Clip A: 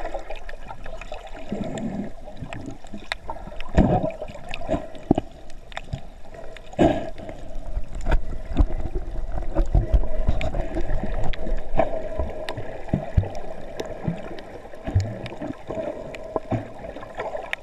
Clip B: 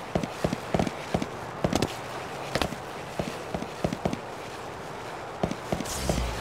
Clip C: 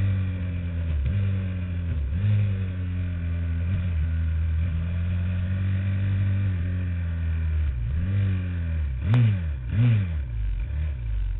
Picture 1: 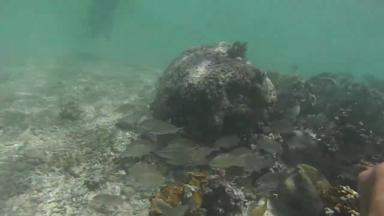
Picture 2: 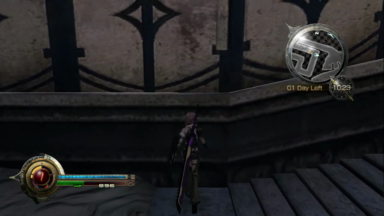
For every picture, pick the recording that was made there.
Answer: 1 A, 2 B